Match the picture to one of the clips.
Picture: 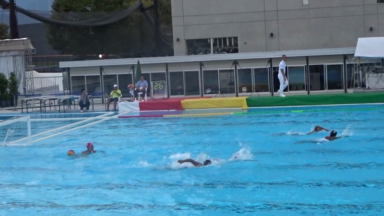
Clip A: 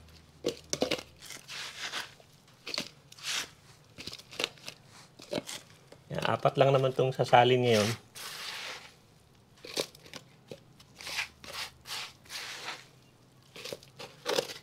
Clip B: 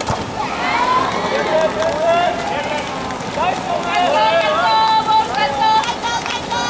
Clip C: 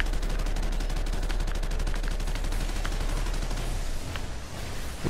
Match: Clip B